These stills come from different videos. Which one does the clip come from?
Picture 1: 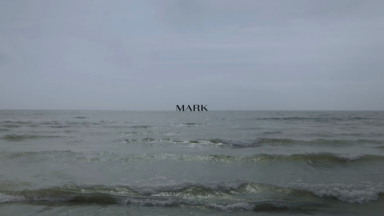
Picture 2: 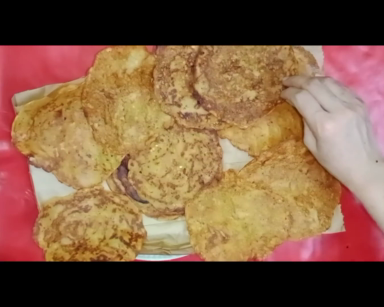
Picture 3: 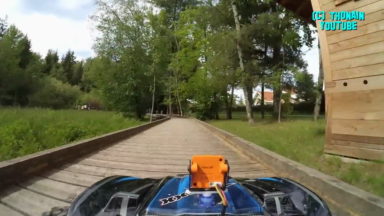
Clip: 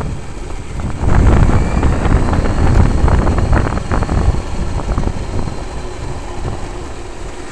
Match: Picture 3